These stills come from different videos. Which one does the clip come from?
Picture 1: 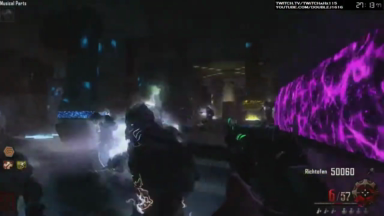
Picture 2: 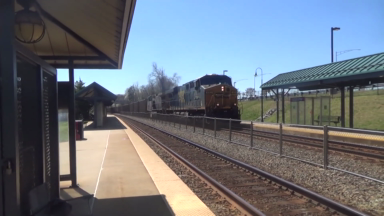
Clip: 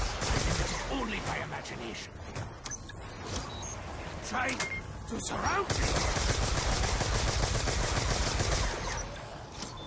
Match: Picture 1